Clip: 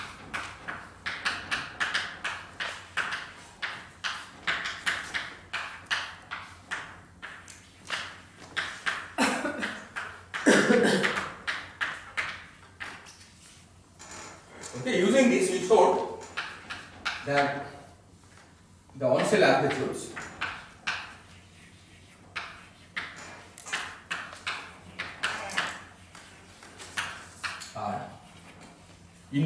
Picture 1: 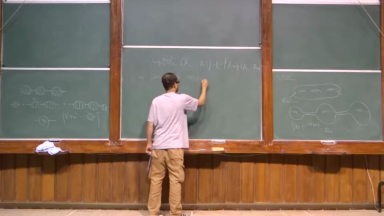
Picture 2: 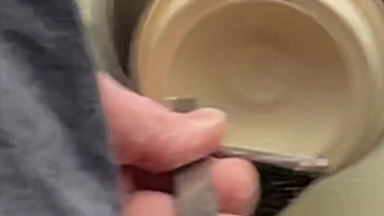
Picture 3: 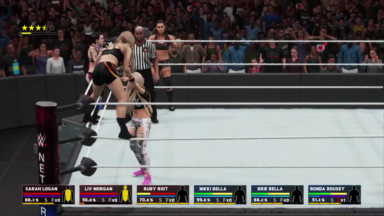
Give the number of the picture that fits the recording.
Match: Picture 1